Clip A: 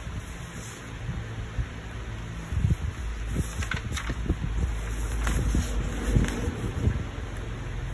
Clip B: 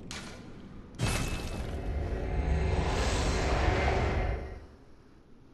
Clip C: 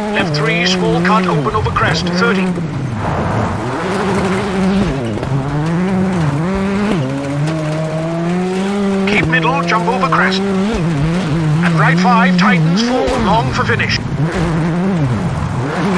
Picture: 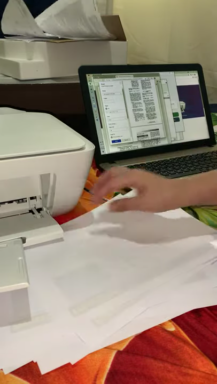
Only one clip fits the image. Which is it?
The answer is A